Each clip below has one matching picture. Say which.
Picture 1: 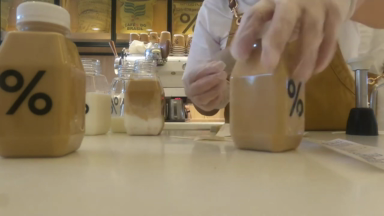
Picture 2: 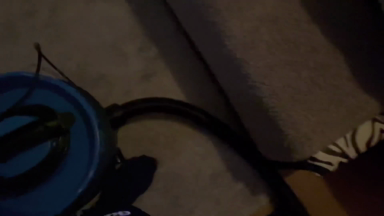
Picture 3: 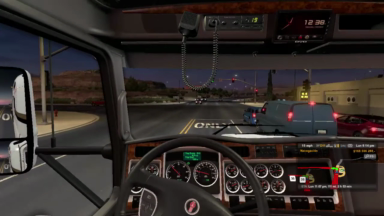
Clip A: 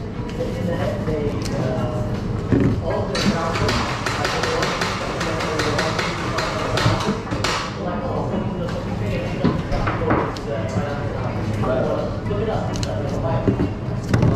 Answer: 1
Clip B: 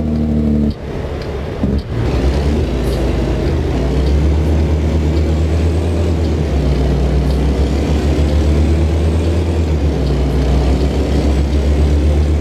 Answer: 3